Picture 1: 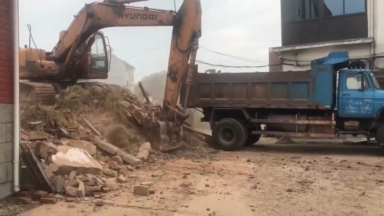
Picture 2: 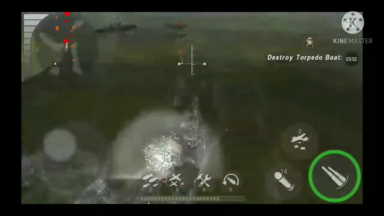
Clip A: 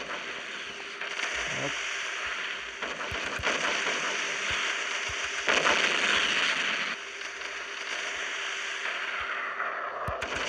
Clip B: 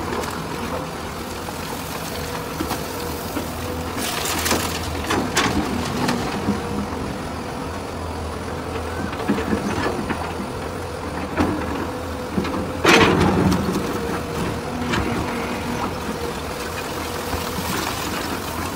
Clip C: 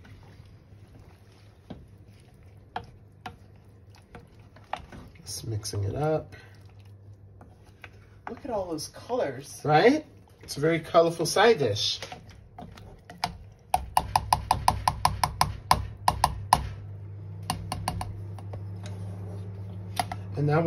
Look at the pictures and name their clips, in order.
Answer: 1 B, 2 A